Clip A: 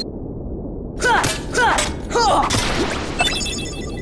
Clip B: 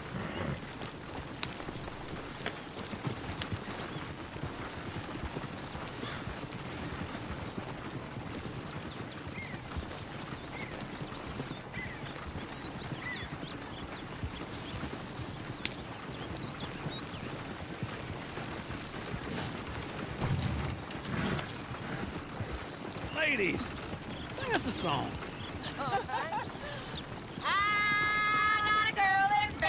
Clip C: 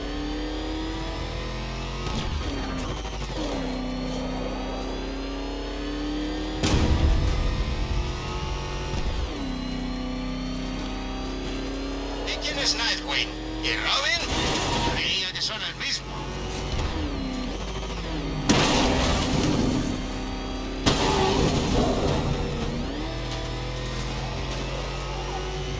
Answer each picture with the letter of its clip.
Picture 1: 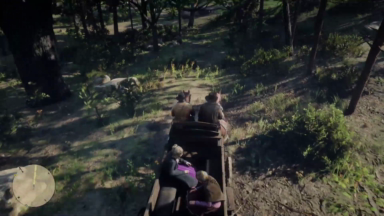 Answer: B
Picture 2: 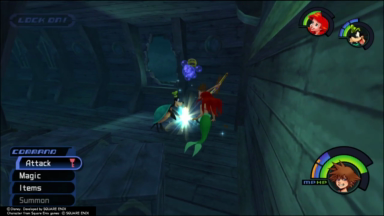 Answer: A